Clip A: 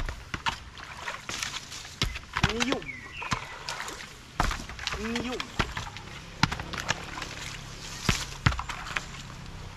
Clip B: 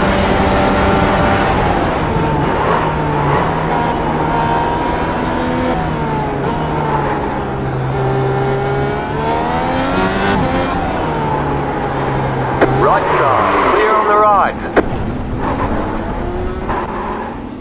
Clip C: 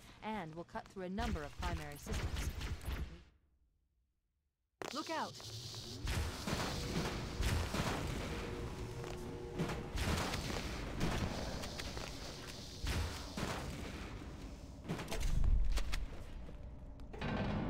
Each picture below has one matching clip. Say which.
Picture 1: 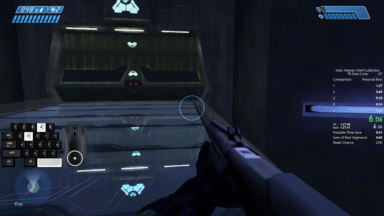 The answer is C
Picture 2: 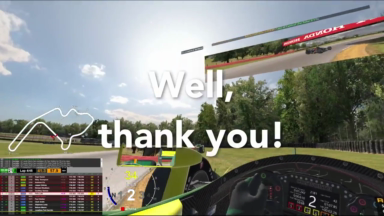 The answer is B